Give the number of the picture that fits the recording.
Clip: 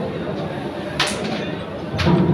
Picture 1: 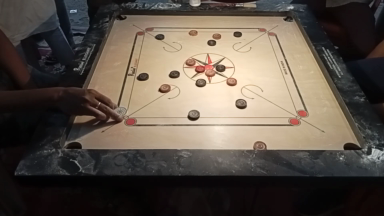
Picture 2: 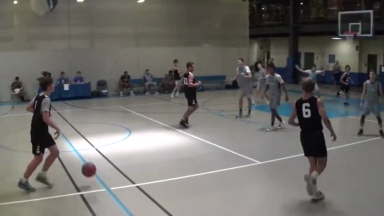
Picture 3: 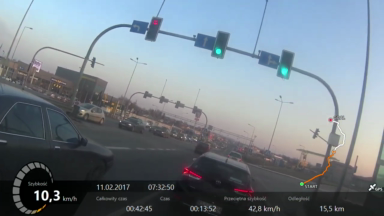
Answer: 1